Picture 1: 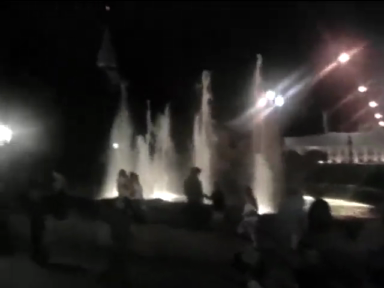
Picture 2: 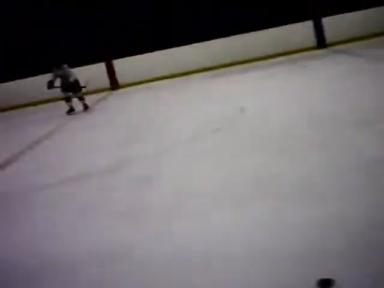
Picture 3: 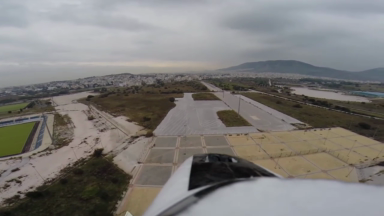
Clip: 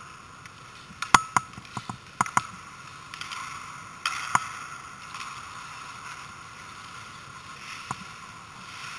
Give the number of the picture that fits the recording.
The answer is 2